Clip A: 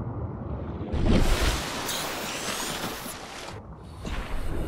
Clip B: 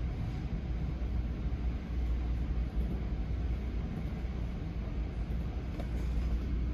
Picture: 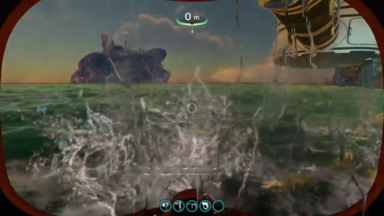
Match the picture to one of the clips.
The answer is A